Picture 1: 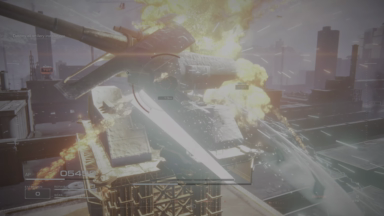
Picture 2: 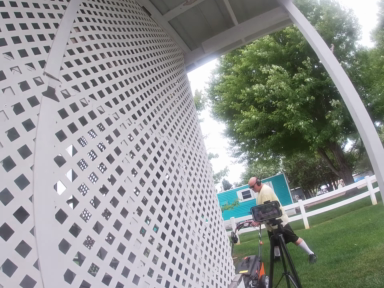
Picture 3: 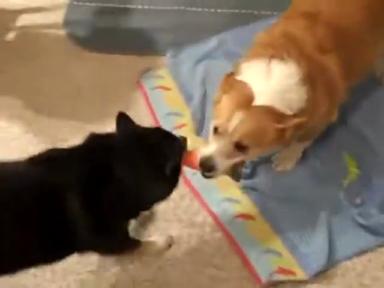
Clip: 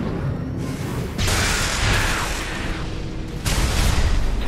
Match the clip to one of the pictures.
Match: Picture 1